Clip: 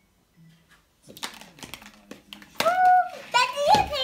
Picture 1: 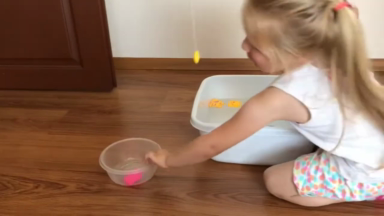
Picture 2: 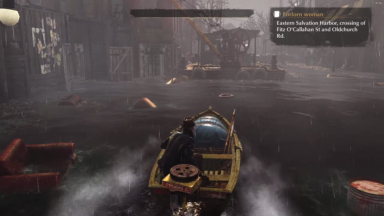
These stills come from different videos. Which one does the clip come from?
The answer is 1